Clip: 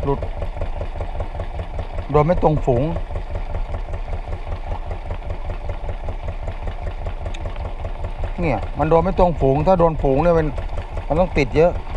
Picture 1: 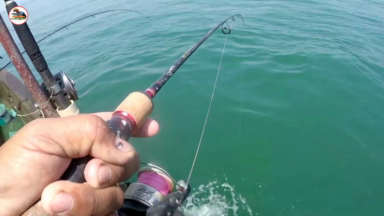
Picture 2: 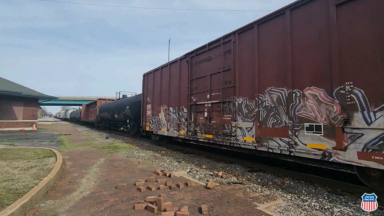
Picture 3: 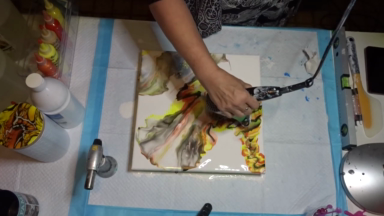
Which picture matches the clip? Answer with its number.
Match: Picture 1